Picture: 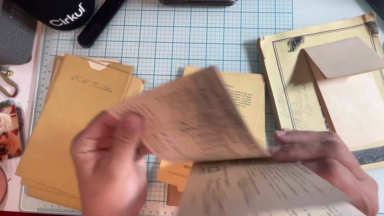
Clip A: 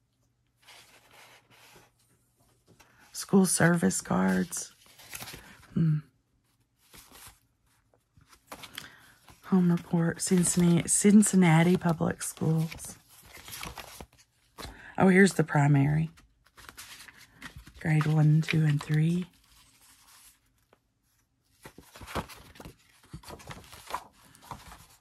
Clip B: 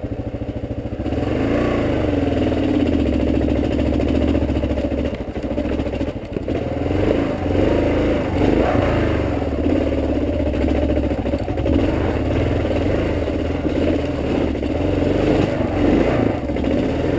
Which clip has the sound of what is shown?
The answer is A